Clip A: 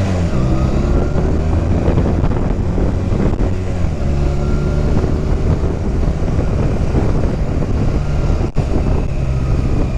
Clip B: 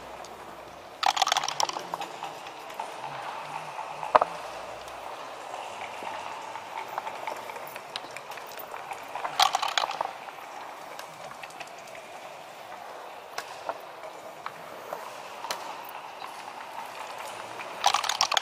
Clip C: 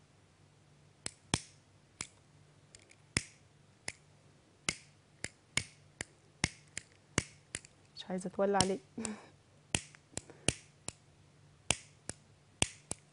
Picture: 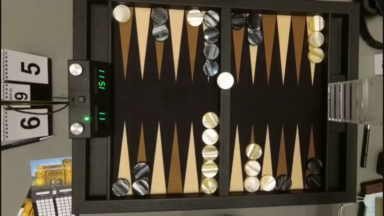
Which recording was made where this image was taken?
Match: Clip B